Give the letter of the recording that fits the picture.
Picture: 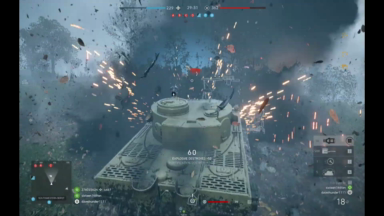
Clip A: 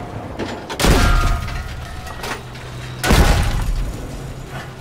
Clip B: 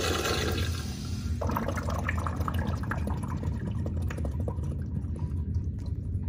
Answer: A